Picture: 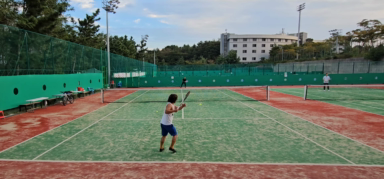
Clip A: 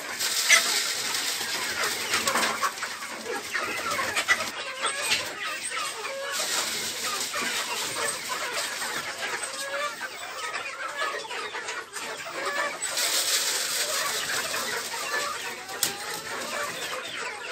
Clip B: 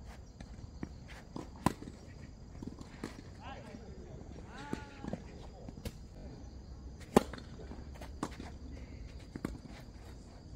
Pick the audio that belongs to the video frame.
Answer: B